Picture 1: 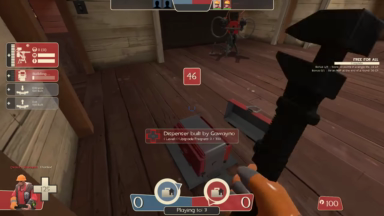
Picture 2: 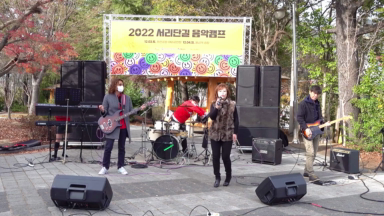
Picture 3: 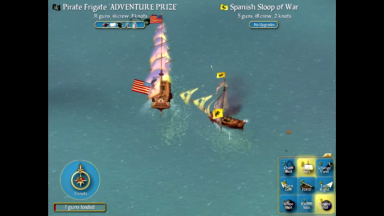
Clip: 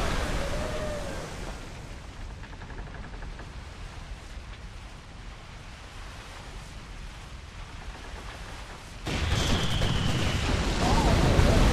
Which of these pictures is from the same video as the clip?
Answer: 3